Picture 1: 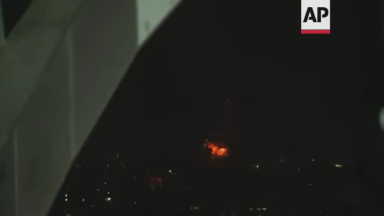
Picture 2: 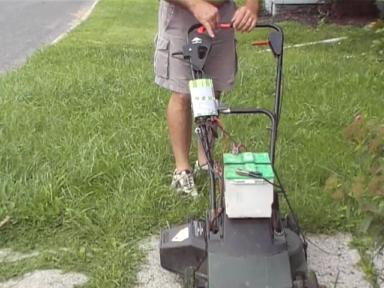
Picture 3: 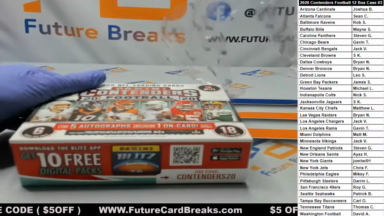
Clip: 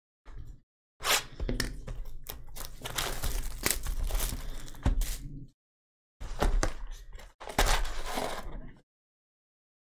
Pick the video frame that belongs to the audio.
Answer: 3